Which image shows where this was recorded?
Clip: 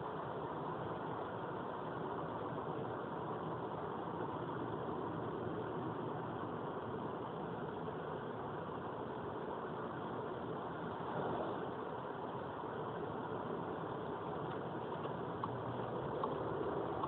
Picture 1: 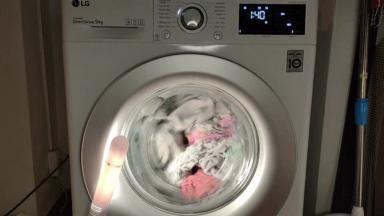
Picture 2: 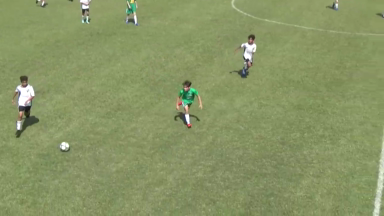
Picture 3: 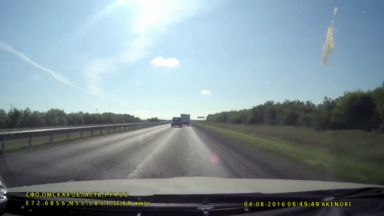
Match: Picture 3